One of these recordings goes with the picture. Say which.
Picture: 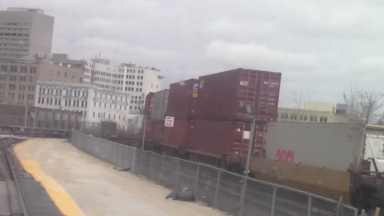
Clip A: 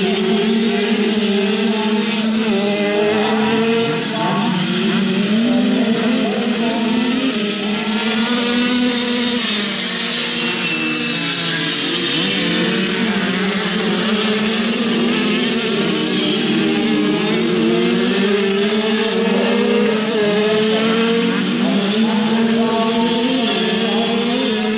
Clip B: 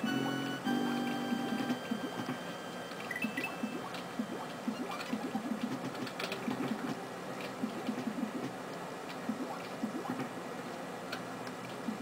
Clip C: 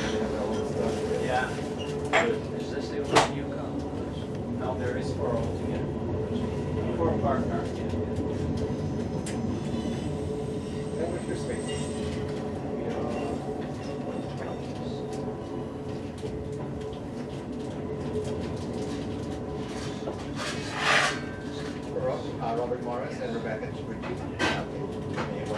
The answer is C